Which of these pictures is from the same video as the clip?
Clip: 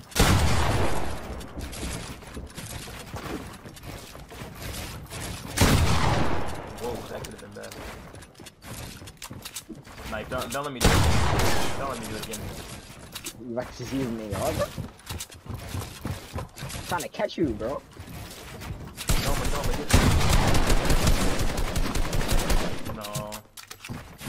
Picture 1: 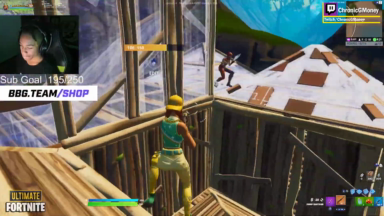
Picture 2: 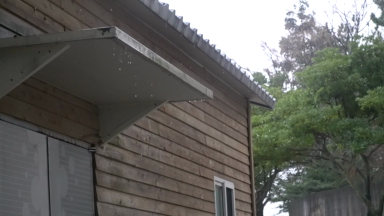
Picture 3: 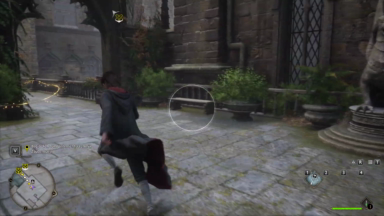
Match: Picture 1